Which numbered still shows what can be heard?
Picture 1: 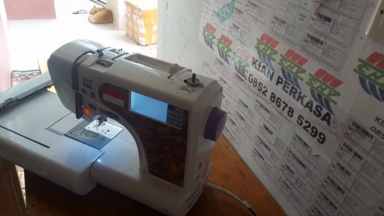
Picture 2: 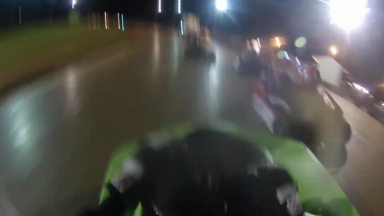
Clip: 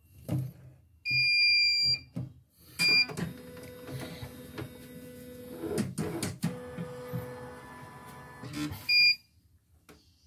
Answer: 1